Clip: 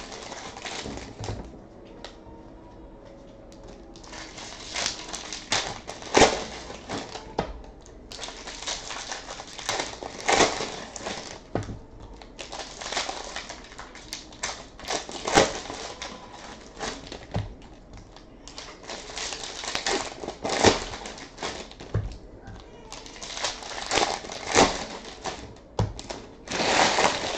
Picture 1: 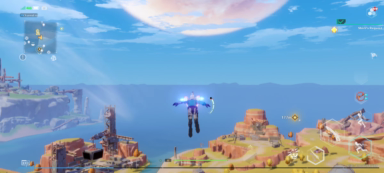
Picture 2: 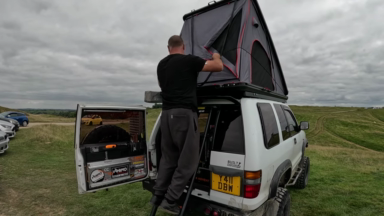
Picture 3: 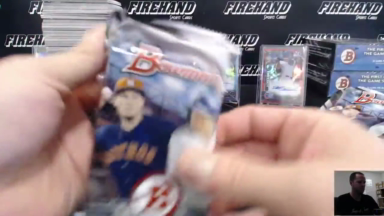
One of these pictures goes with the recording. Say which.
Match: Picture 3